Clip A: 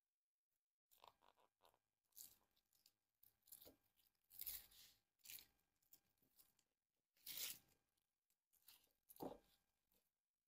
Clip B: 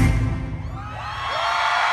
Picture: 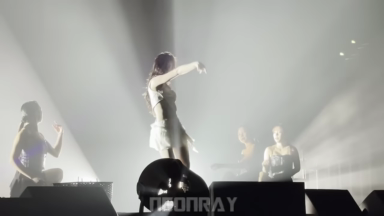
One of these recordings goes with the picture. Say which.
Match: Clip B